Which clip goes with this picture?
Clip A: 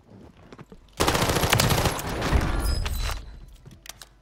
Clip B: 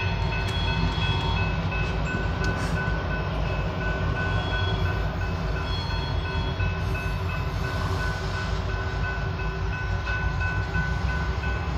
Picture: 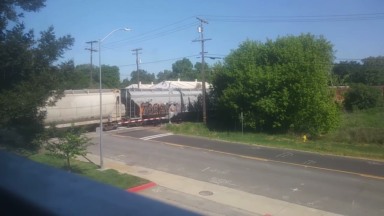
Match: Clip B